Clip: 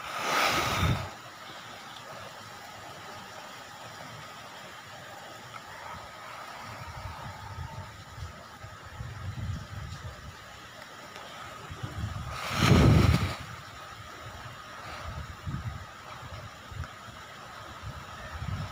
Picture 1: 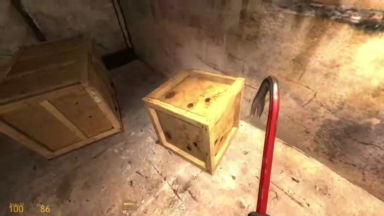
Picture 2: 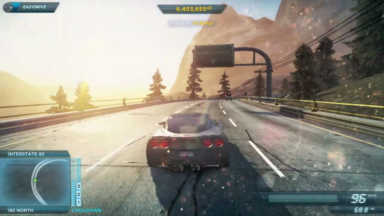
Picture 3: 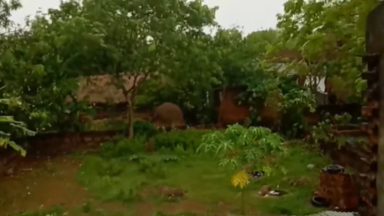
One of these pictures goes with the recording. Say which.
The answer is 3